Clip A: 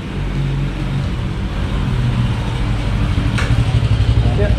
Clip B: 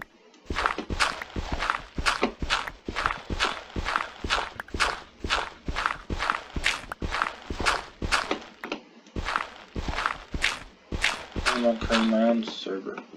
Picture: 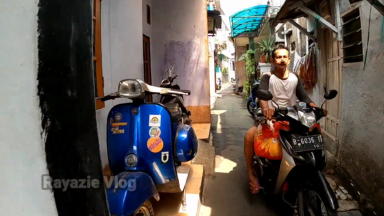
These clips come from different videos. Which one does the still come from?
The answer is A